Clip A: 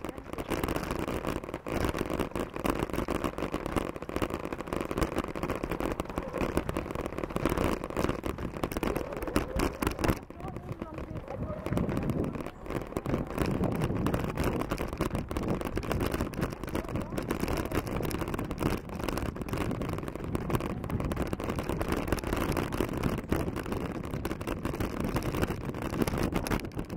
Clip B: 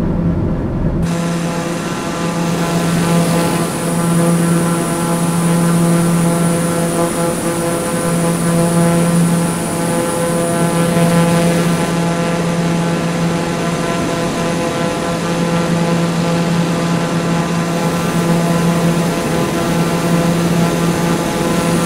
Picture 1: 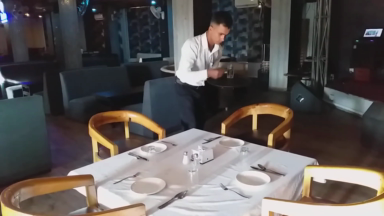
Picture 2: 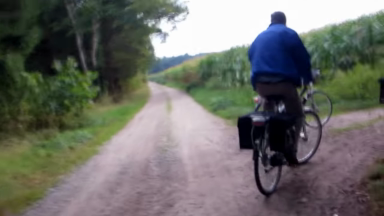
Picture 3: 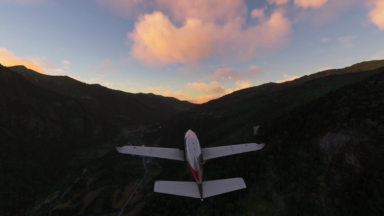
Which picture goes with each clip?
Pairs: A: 2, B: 3